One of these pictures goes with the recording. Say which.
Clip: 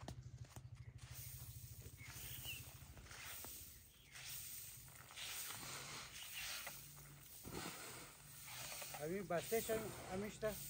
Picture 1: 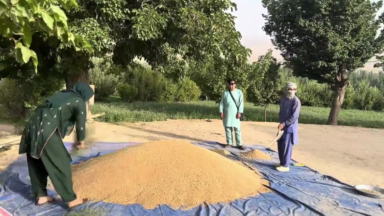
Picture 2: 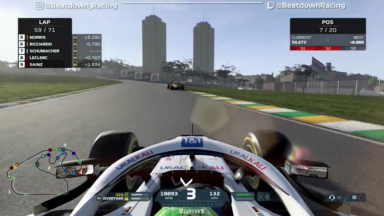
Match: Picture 1